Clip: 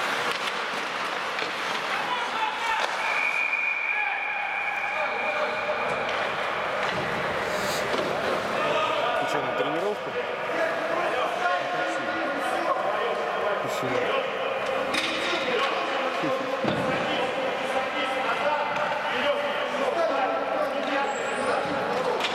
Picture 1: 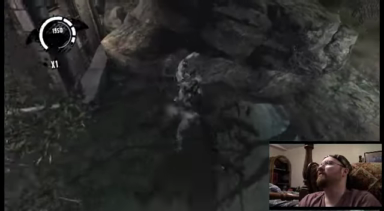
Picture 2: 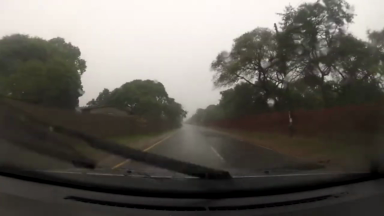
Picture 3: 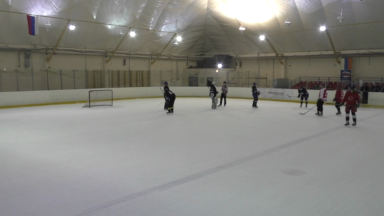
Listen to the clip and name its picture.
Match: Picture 3